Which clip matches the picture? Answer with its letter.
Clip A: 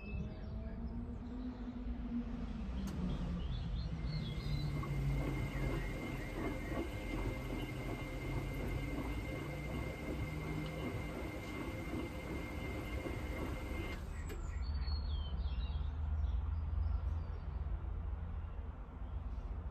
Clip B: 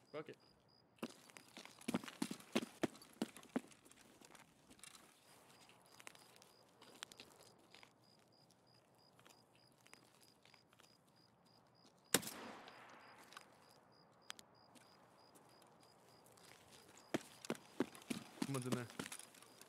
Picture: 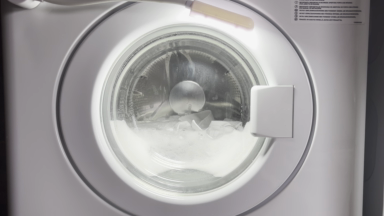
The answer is A